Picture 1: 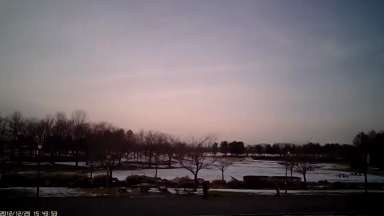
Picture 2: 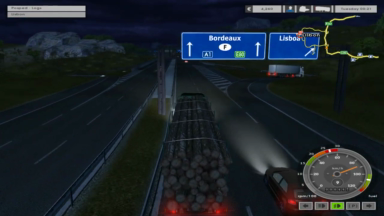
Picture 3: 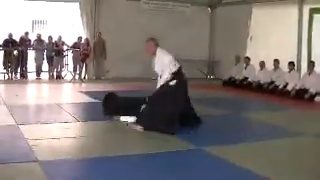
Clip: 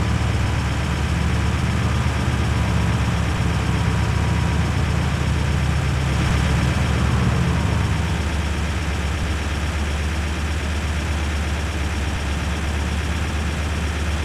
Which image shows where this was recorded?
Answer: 2